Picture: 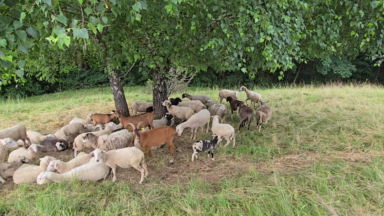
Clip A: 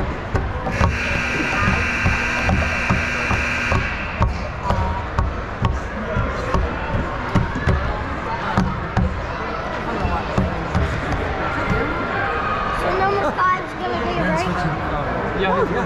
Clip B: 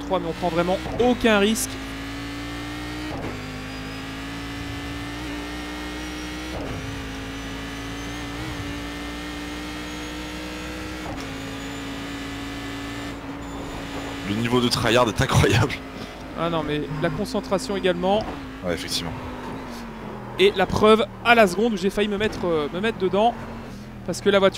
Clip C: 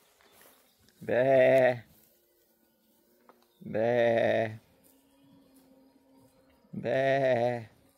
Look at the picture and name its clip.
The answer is C